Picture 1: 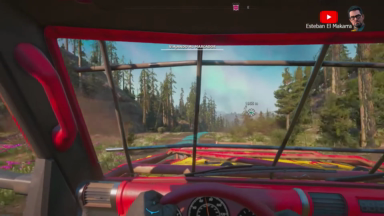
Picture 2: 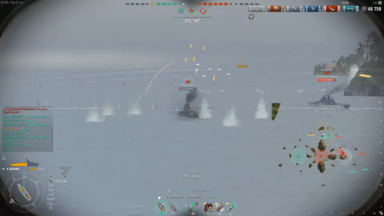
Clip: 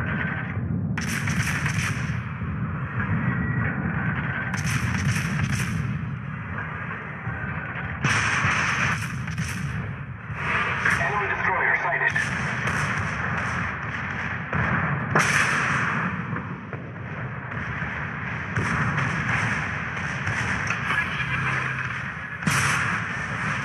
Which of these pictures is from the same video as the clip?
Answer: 2